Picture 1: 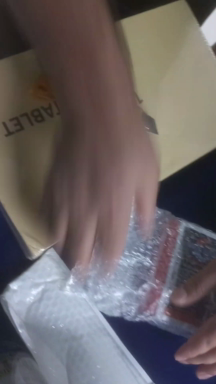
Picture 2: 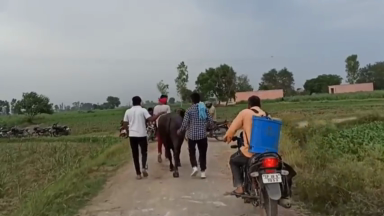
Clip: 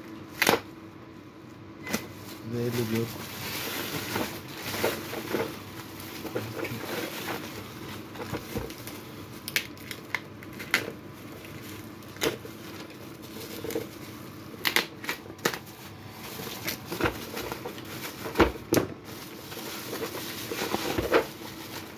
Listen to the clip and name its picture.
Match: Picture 1